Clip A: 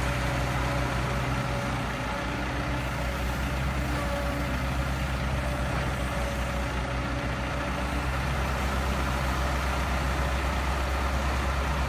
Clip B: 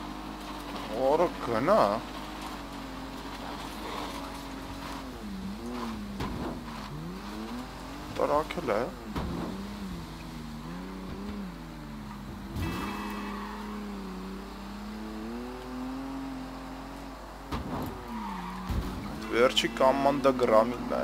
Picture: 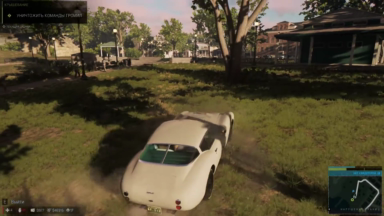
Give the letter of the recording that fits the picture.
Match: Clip B